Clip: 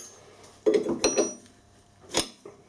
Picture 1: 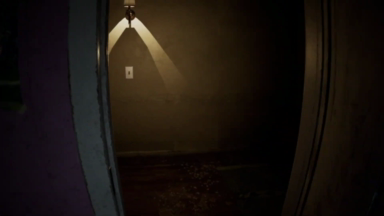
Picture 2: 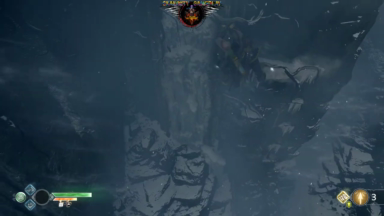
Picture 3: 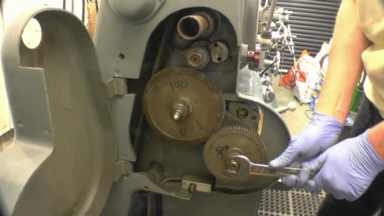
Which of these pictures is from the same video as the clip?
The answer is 3